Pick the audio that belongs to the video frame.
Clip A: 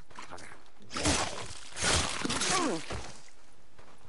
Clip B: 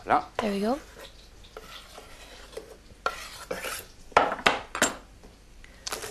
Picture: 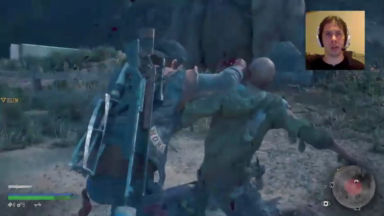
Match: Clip A